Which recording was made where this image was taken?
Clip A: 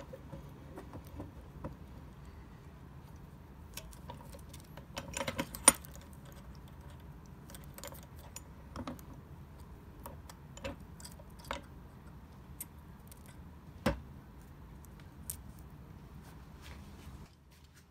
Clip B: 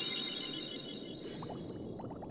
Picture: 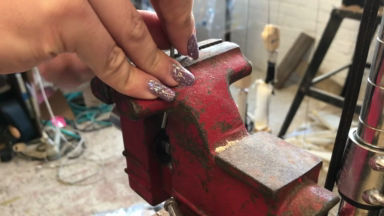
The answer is A